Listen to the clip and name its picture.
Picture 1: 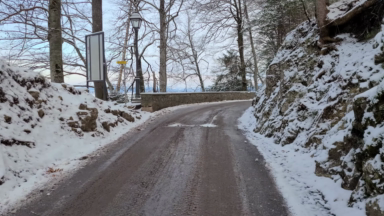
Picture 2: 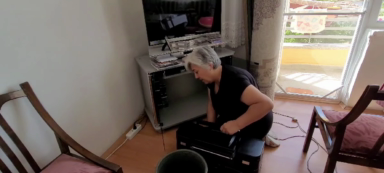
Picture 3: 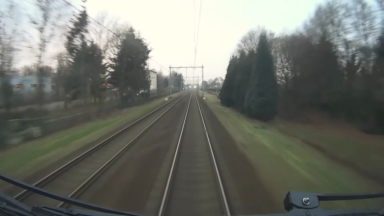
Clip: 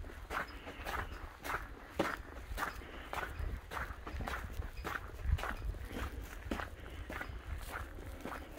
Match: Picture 1